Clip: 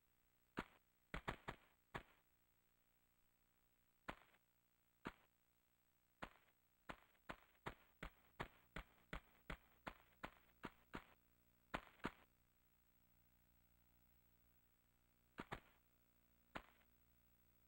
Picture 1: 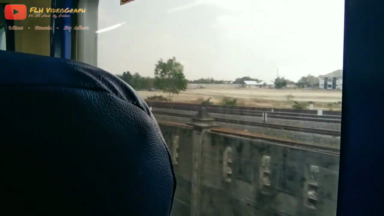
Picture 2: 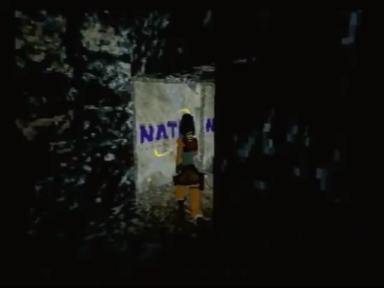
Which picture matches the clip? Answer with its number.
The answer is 2